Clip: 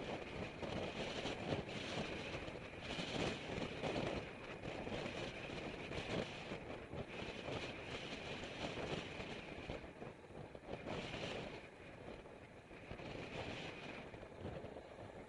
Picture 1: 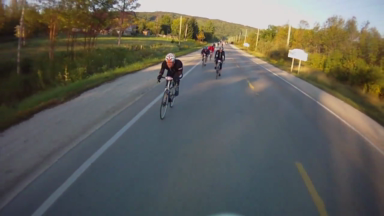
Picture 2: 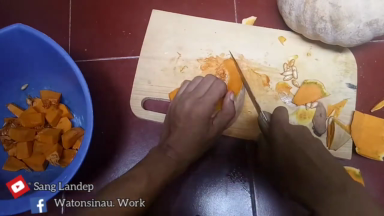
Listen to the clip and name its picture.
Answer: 1